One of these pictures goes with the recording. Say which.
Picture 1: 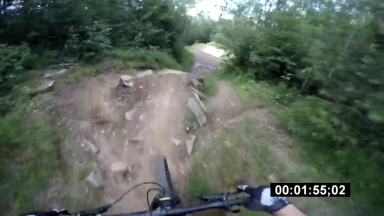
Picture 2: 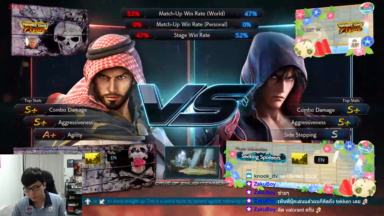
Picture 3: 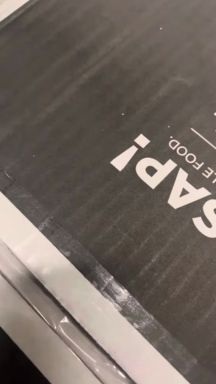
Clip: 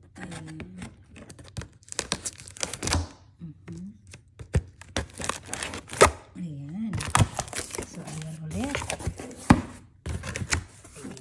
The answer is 3